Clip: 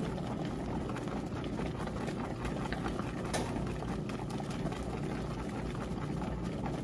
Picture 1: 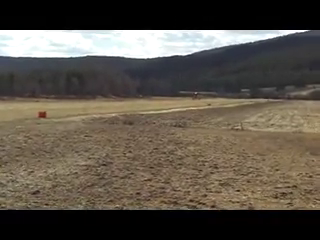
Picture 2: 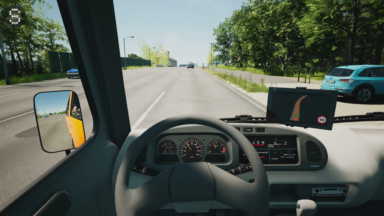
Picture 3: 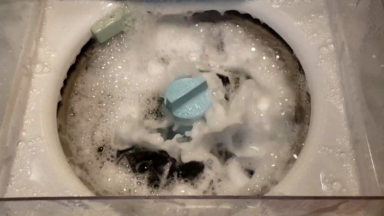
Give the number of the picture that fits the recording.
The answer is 3